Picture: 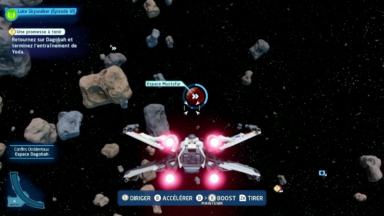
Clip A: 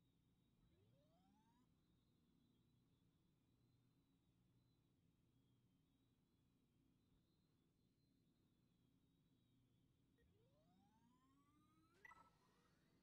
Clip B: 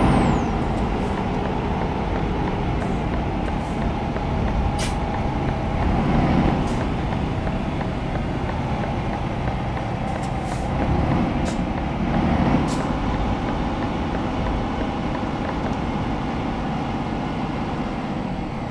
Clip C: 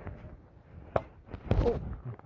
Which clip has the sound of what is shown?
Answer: A